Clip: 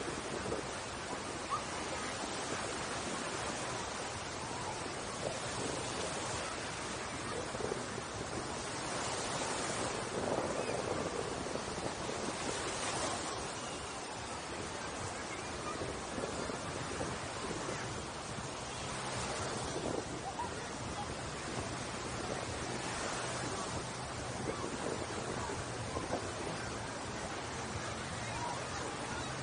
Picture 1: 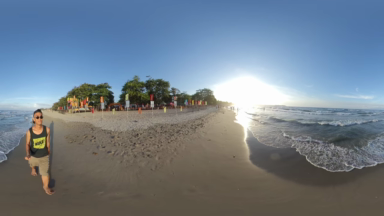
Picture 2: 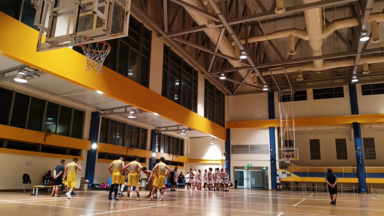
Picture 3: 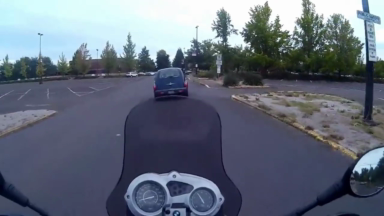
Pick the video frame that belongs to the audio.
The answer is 1